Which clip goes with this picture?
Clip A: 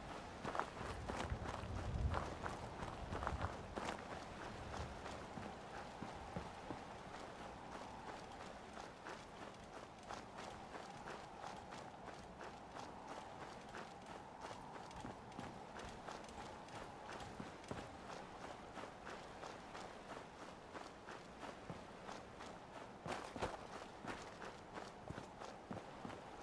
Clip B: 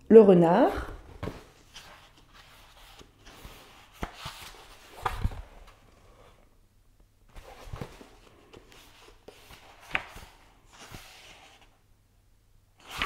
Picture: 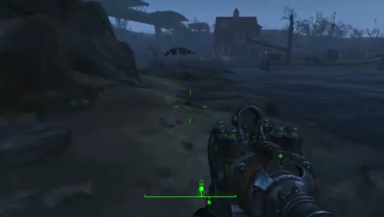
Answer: A